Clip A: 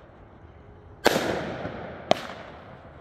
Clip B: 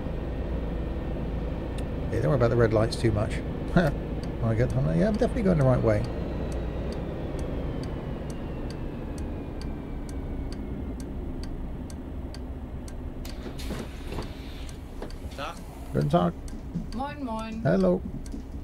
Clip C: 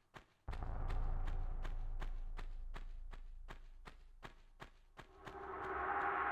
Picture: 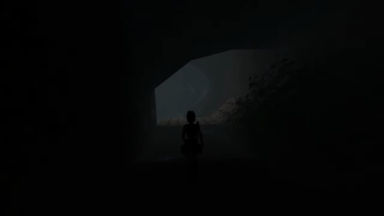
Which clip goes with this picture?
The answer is C